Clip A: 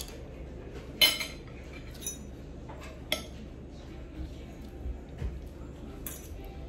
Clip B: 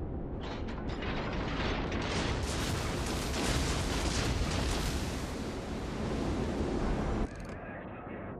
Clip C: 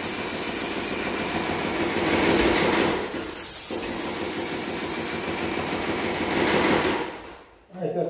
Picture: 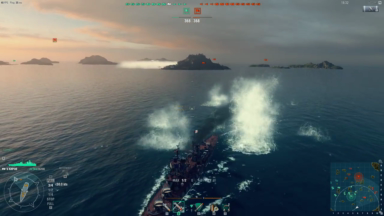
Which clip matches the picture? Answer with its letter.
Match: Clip B